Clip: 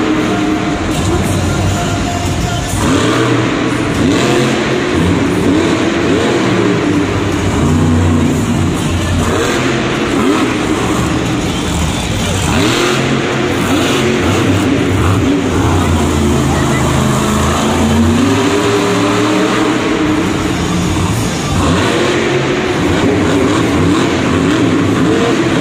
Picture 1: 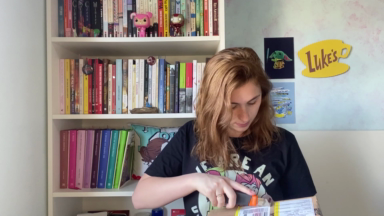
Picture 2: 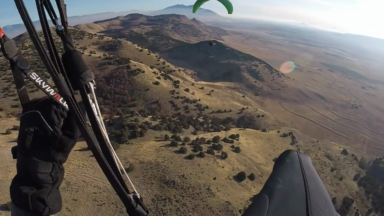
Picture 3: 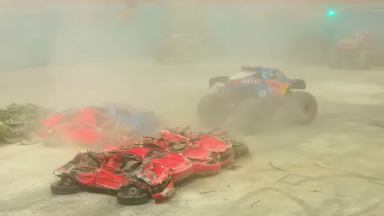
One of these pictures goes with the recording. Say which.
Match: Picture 3